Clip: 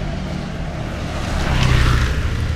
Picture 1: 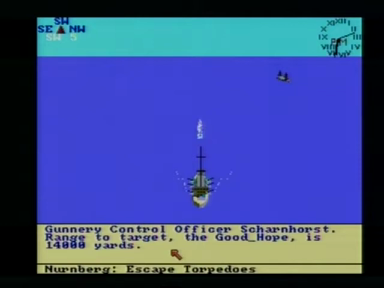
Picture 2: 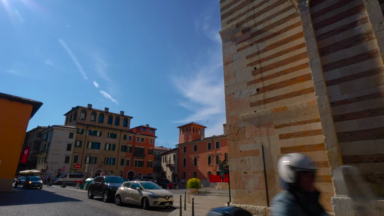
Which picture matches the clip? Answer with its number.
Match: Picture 2